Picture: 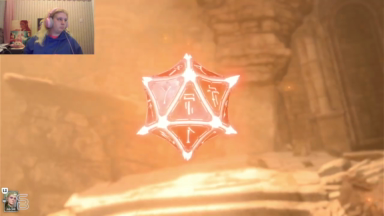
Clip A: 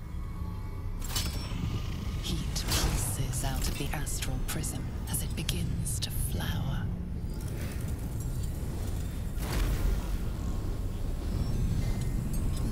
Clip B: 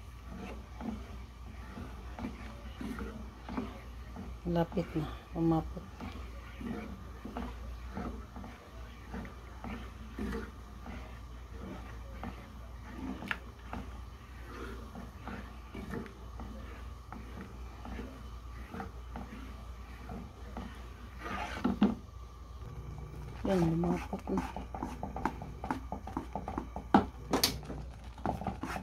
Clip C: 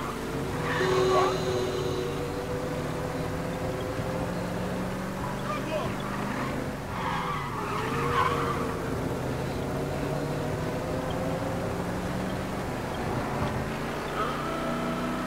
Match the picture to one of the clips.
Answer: A